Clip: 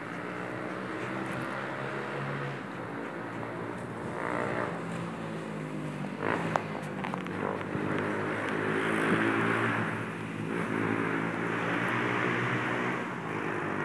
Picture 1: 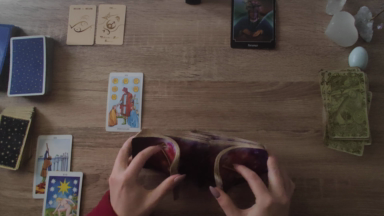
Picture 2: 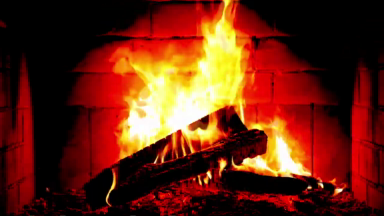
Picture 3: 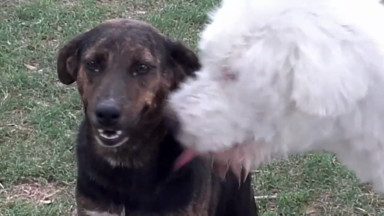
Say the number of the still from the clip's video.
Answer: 3